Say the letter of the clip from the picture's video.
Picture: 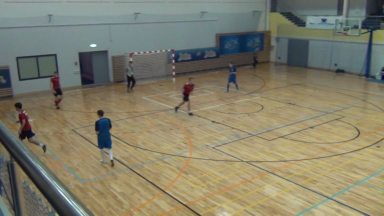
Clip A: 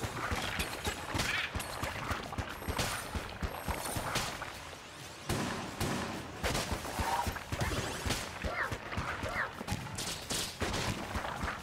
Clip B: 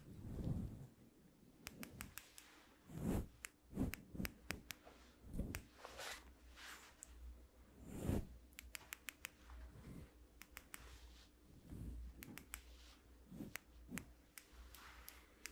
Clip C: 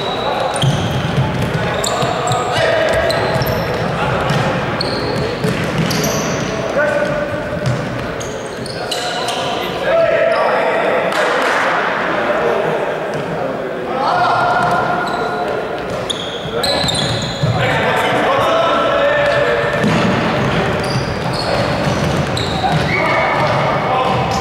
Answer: C